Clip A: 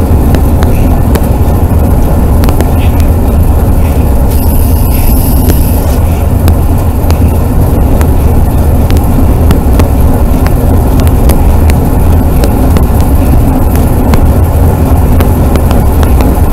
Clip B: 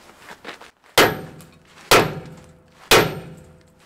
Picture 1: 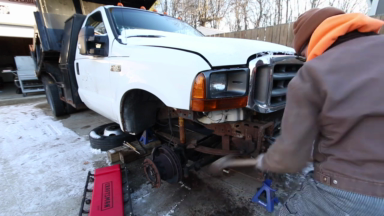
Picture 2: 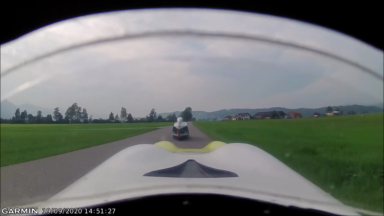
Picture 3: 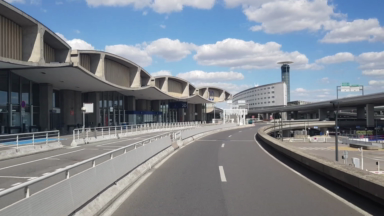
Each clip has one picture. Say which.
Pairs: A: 2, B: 1